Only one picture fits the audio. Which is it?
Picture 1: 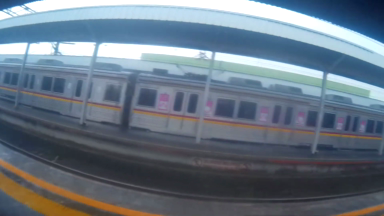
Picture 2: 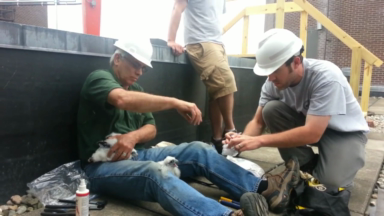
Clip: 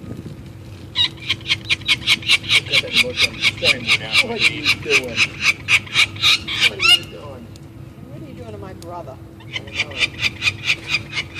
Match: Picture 2